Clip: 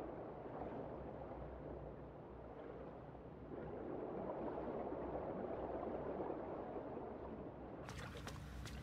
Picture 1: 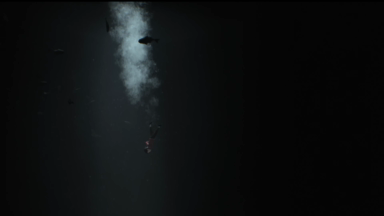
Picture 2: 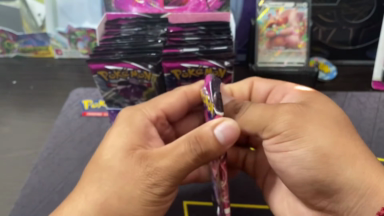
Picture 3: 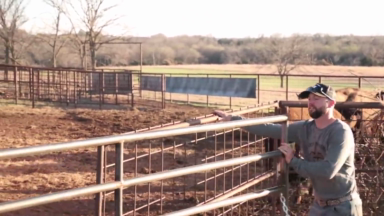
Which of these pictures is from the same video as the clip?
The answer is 1